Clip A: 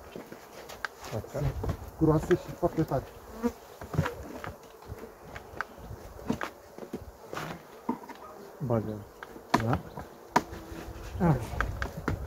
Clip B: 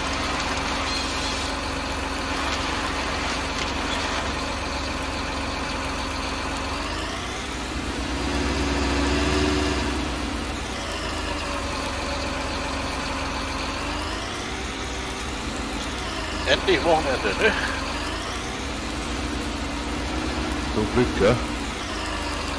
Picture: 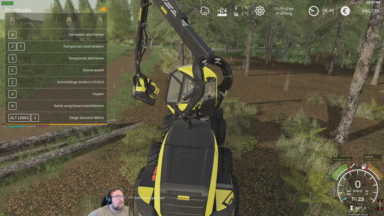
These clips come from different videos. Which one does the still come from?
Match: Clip B